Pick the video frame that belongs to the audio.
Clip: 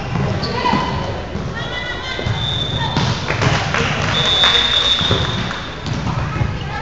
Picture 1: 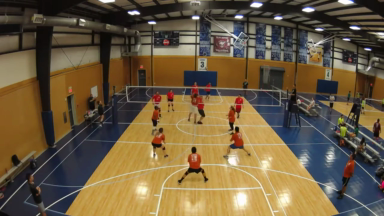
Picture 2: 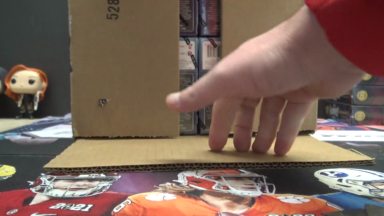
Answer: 1